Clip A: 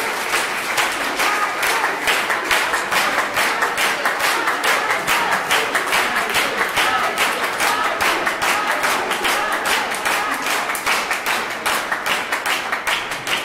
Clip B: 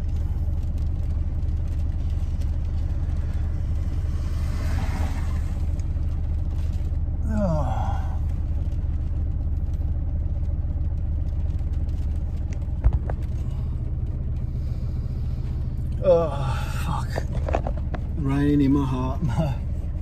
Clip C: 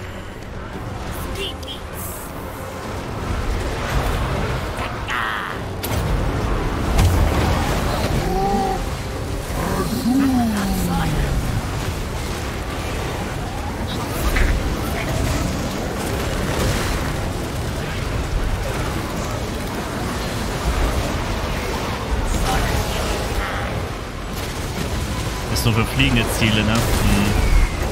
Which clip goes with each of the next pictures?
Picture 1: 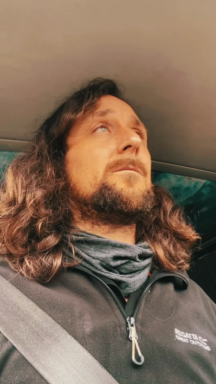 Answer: B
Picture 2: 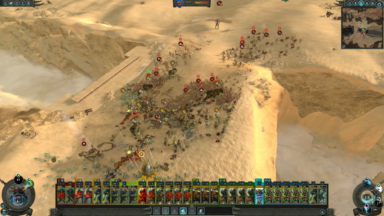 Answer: C